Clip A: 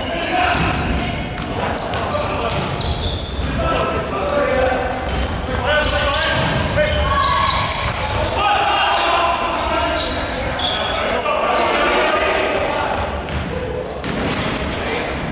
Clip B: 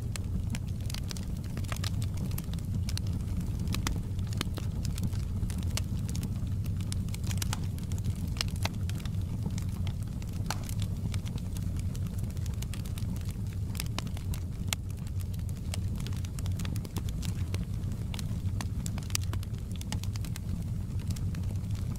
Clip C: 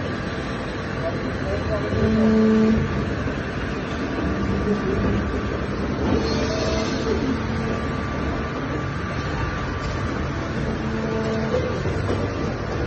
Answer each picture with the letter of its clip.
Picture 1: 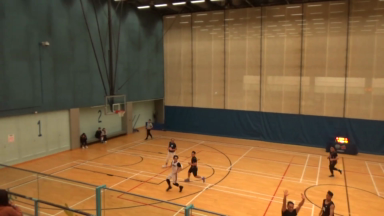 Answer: A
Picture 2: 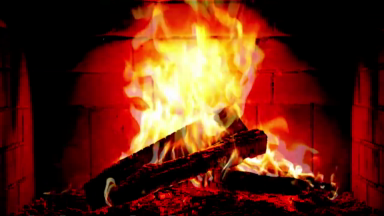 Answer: B